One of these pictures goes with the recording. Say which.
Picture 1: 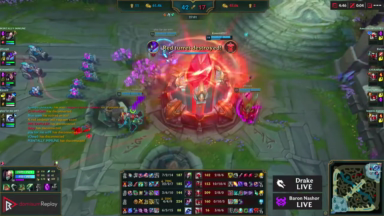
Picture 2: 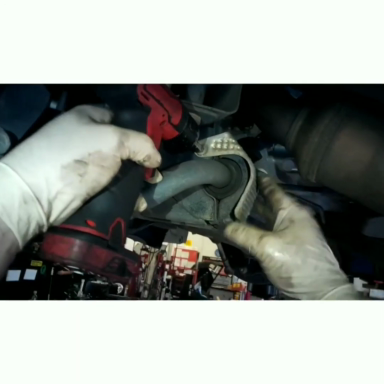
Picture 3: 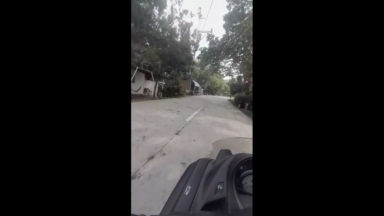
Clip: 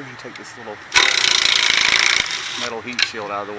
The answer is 2